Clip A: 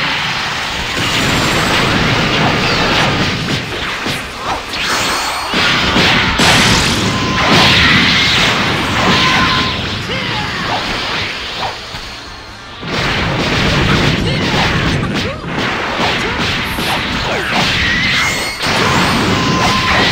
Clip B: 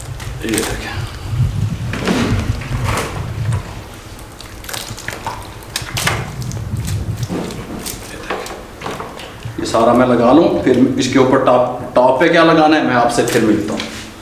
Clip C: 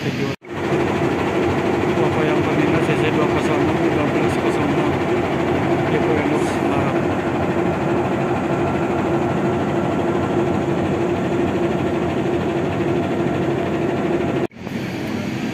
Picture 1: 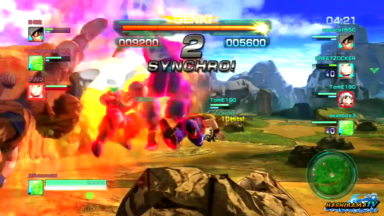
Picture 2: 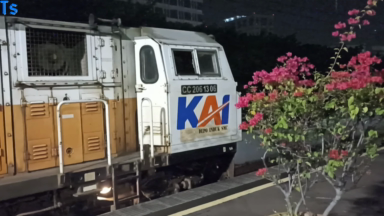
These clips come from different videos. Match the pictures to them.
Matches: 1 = A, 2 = C